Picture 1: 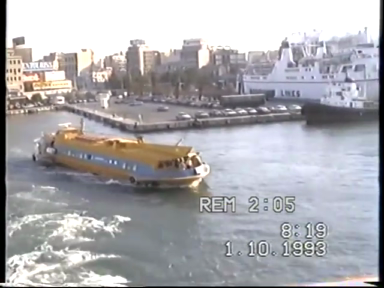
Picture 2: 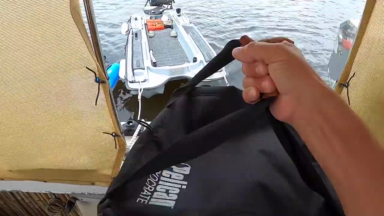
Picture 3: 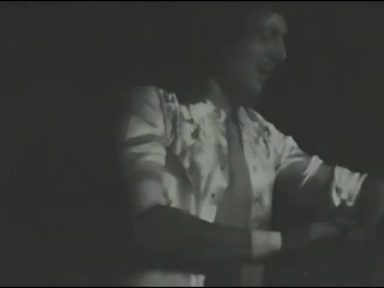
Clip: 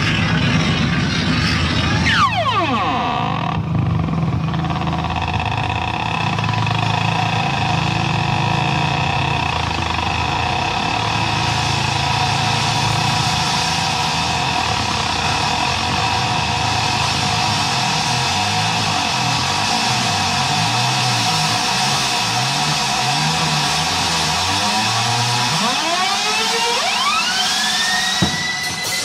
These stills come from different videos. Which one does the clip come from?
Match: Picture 3